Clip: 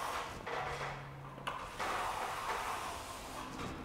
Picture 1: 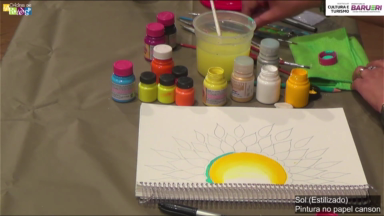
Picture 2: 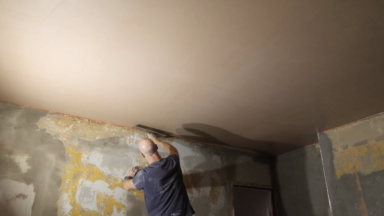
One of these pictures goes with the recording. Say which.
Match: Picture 2